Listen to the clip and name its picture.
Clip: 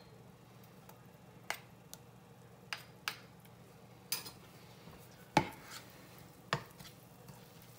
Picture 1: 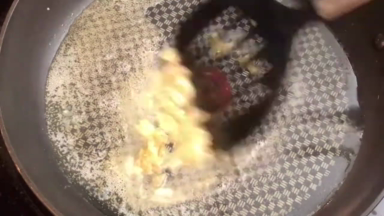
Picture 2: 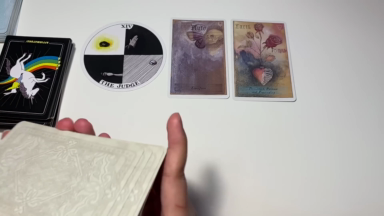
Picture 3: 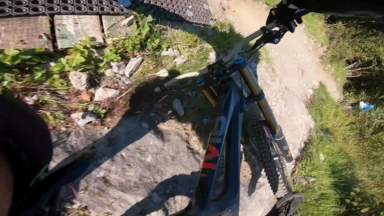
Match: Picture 1